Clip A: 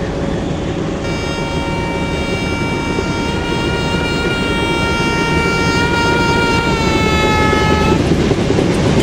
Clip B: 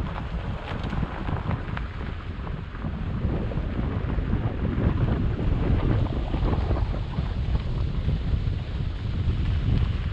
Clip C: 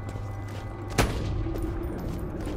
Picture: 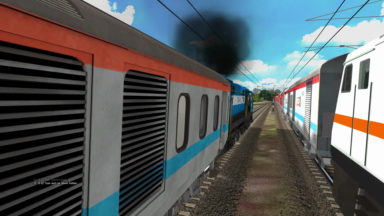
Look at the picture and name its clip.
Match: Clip A